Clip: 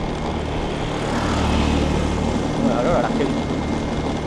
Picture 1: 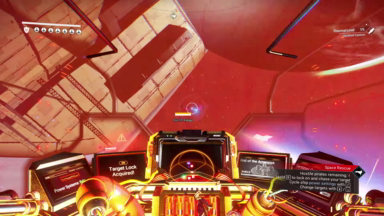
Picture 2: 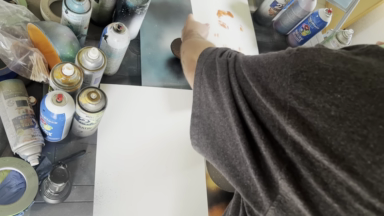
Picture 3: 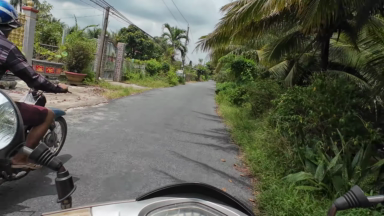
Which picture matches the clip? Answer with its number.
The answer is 3